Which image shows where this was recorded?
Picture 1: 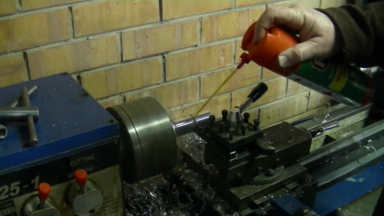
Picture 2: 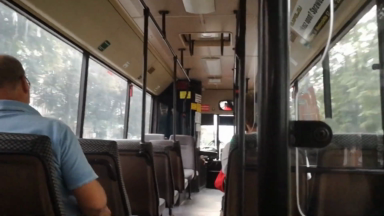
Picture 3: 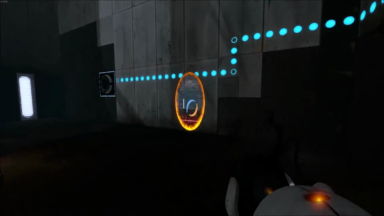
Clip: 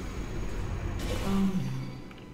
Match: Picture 3